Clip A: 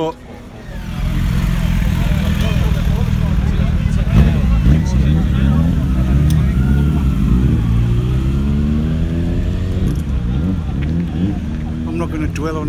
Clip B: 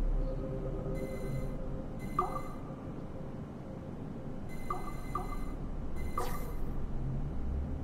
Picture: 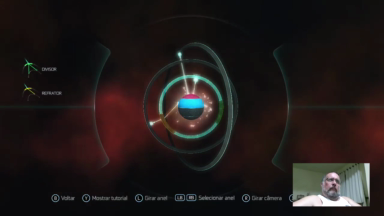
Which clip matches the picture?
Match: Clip B